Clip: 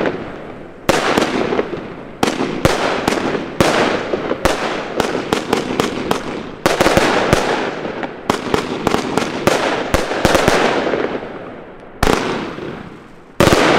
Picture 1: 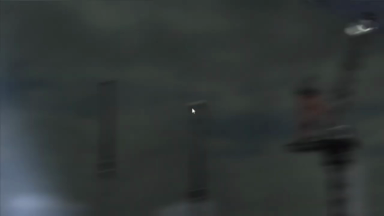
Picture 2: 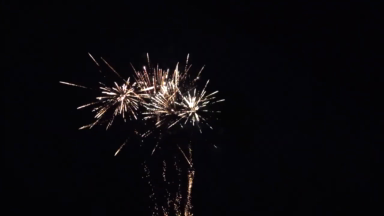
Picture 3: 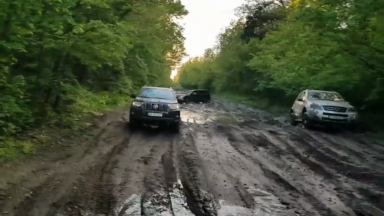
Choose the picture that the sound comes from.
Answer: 2